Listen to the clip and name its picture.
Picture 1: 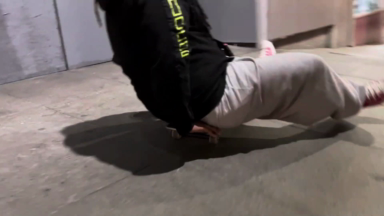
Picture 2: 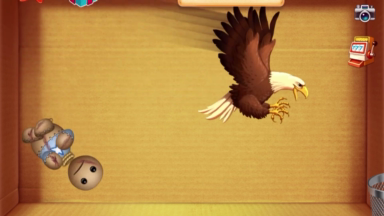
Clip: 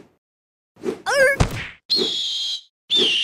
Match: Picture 2